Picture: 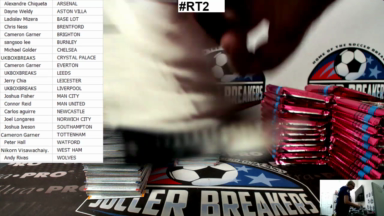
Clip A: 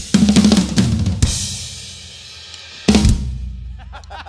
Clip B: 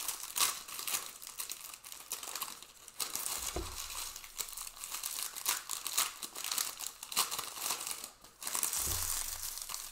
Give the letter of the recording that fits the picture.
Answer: B